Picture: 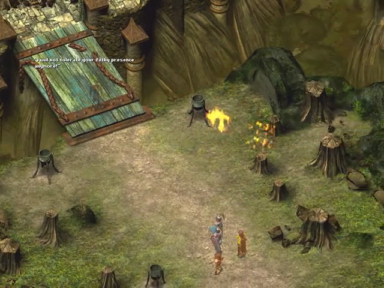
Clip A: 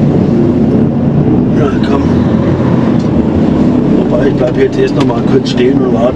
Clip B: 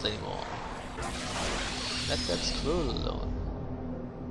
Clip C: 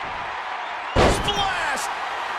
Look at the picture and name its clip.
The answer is B